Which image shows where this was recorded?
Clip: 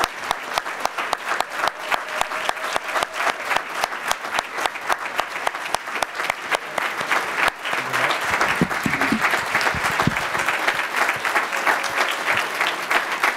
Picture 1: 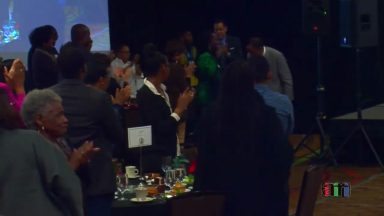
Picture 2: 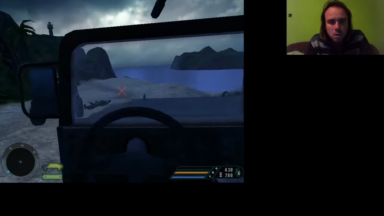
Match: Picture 1